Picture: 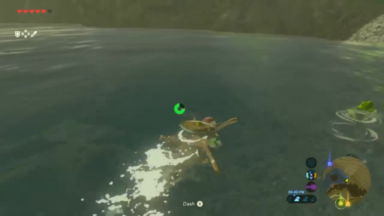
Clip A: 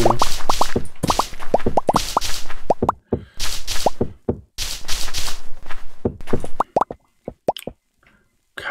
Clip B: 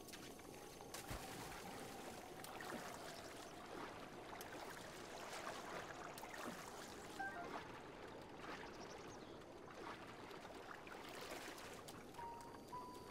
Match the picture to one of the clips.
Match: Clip B